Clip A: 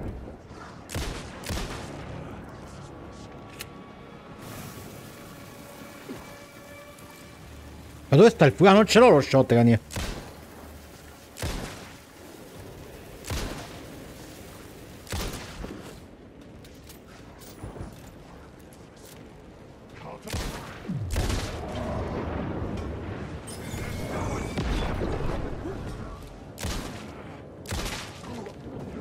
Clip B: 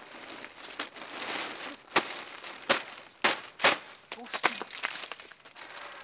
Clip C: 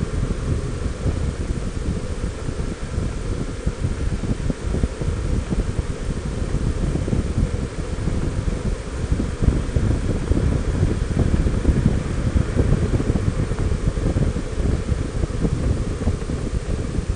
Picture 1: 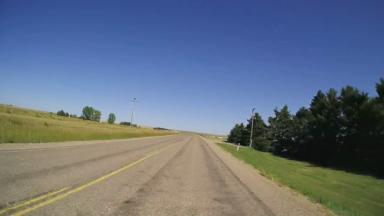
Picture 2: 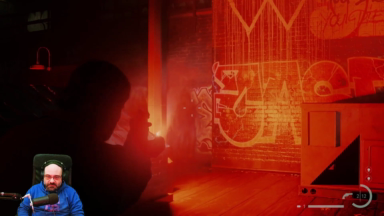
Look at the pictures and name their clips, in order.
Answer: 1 C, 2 A